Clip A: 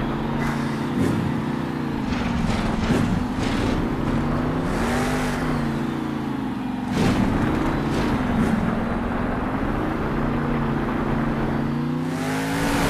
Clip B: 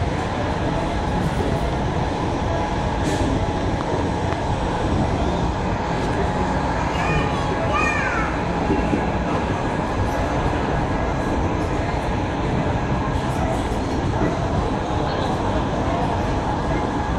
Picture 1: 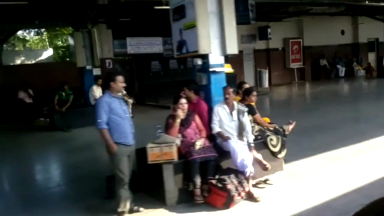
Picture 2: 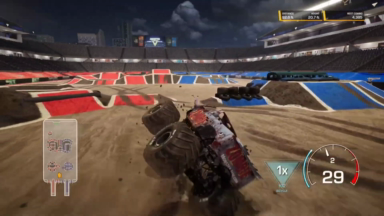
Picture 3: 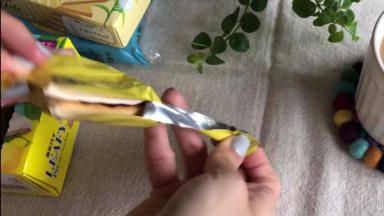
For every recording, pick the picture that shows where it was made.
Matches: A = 2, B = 1